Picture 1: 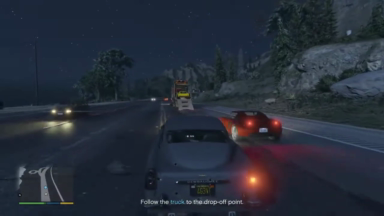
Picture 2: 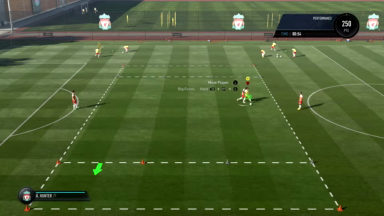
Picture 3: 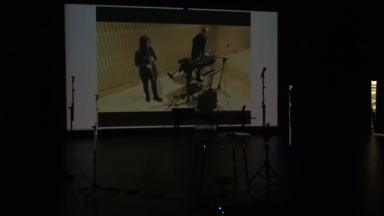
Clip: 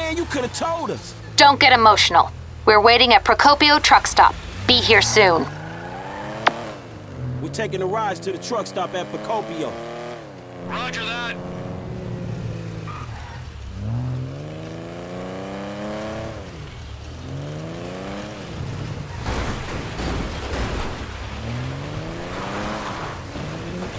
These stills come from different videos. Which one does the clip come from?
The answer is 1